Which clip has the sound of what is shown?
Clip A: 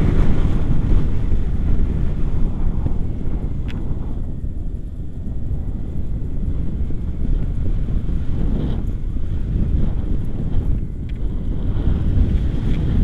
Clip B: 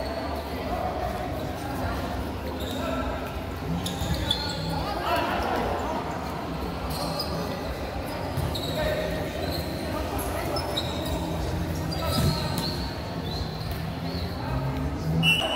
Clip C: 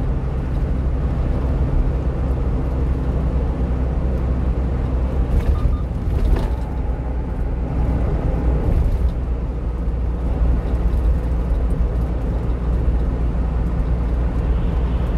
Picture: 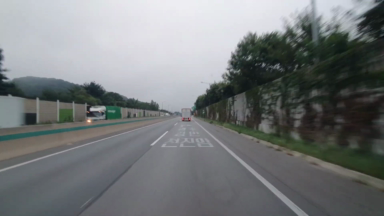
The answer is C